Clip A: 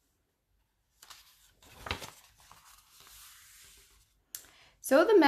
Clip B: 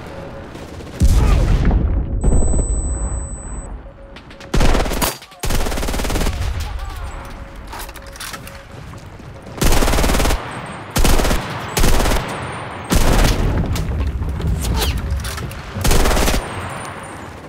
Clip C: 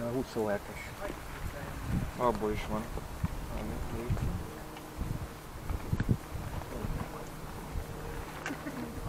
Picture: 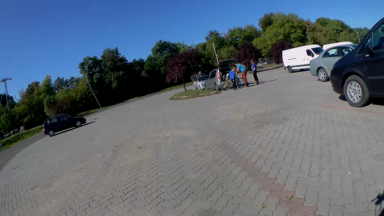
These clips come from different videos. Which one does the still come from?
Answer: C